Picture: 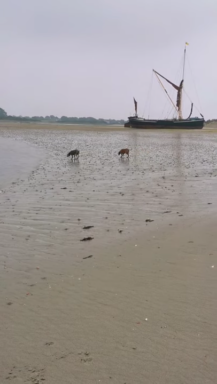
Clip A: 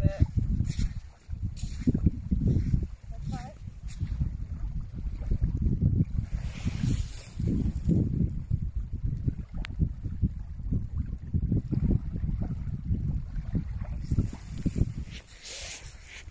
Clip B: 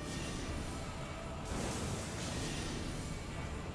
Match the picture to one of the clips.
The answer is A